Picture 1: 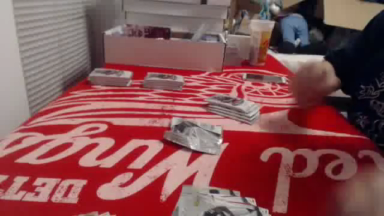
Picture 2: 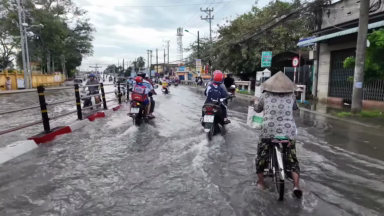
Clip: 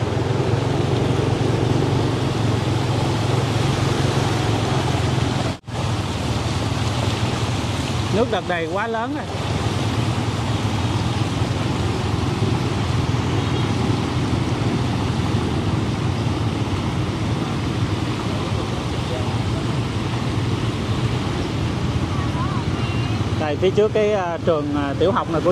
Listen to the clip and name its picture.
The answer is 2